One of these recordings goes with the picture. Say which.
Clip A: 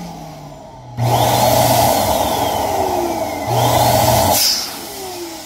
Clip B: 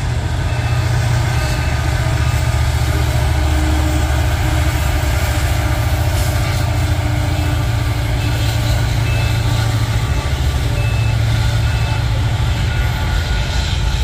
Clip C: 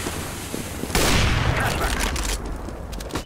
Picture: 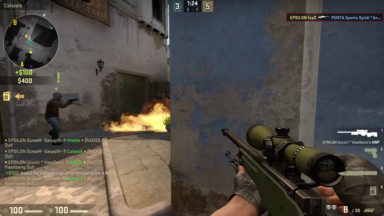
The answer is C